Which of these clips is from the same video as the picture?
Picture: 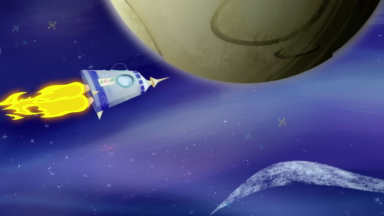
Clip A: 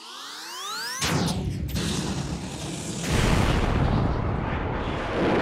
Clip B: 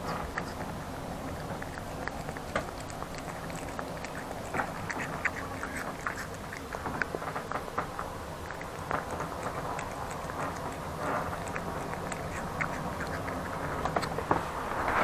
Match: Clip A